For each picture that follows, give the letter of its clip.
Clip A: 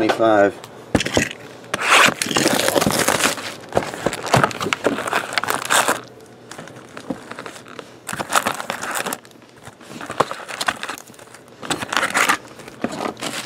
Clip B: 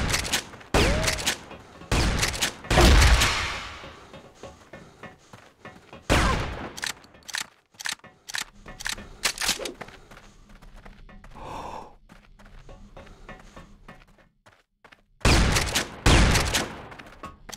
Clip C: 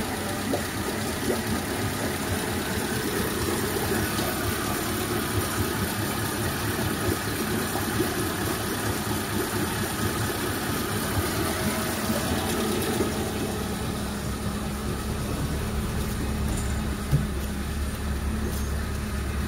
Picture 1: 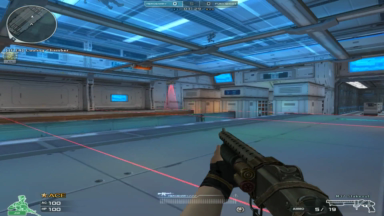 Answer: B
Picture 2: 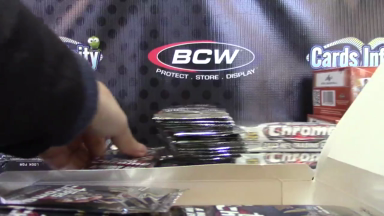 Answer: A